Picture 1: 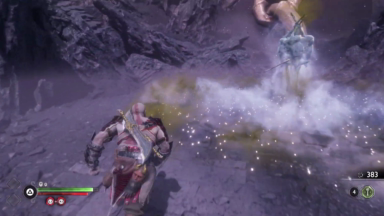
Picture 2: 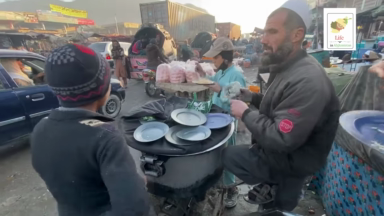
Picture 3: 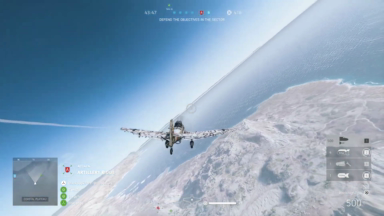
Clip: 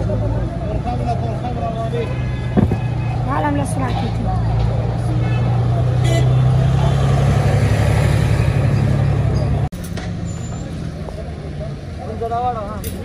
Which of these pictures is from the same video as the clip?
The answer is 2